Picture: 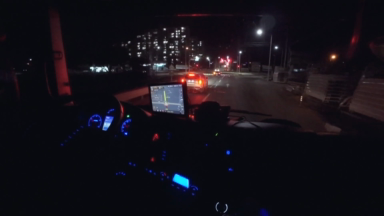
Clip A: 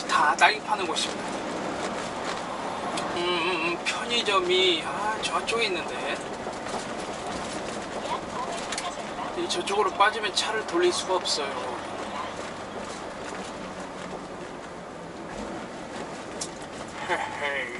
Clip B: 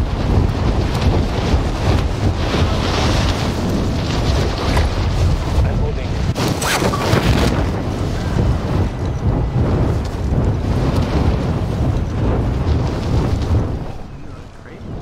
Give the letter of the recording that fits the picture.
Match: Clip A